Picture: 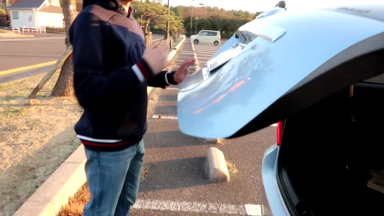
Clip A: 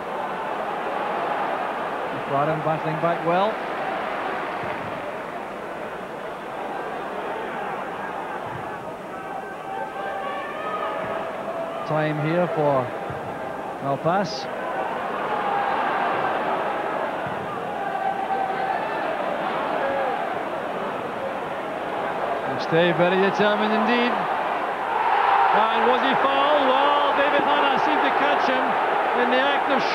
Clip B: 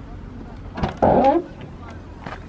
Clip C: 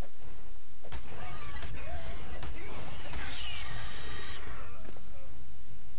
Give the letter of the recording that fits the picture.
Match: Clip B